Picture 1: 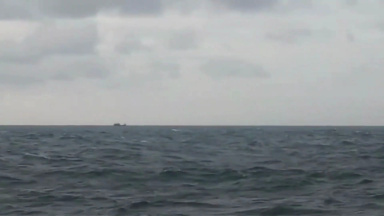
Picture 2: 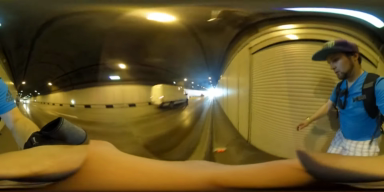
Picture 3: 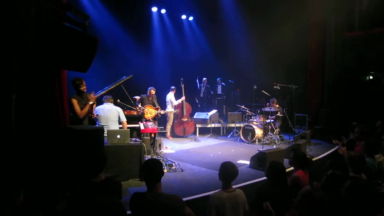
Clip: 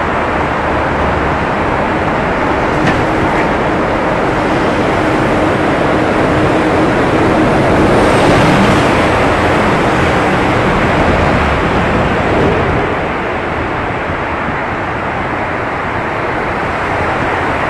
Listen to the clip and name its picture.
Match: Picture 2